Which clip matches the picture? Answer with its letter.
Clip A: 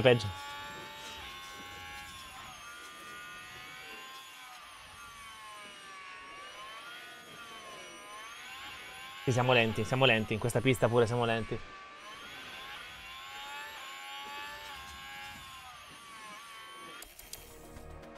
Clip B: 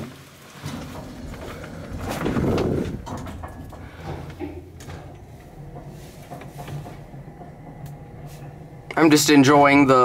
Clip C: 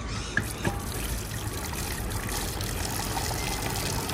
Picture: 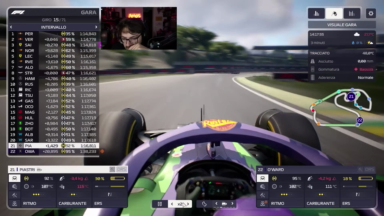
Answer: A